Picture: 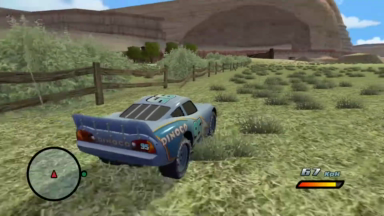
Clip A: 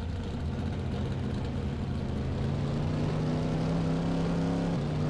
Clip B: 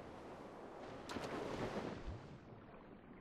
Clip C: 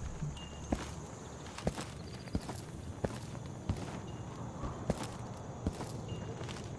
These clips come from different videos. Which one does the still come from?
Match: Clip A